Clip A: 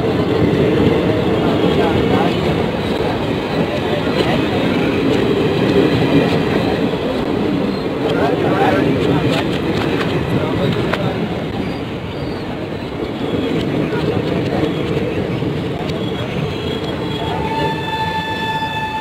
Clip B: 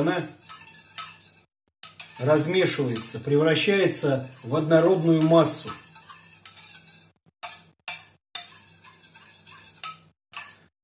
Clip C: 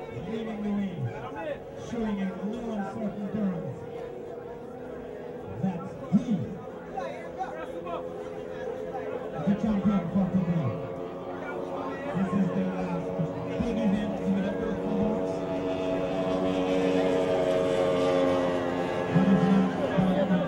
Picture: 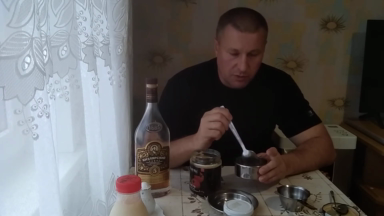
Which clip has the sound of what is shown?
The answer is B